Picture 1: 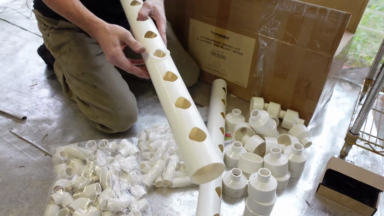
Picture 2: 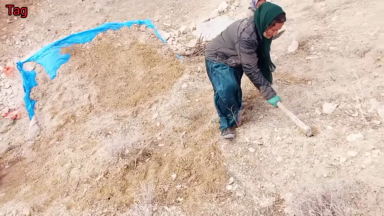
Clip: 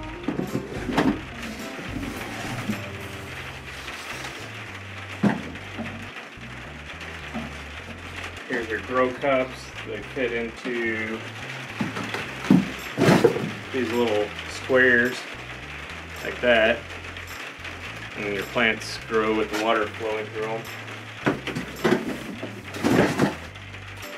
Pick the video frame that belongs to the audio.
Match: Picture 1